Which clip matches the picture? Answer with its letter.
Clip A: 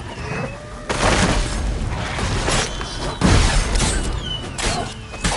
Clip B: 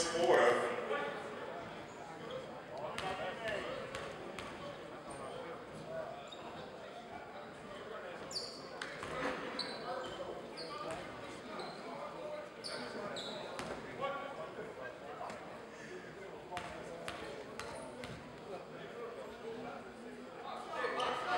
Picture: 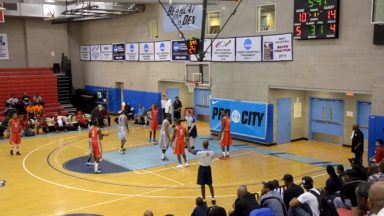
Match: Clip B